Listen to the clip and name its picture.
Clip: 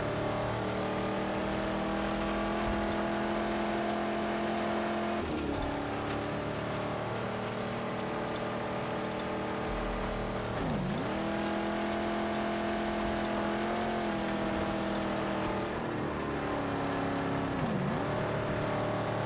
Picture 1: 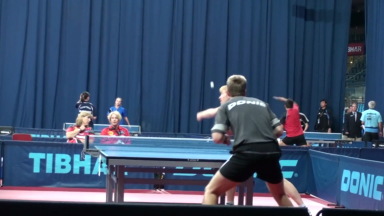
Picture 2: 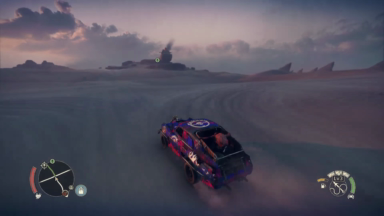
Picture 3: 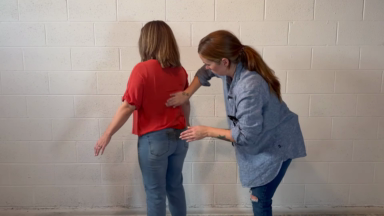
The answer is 2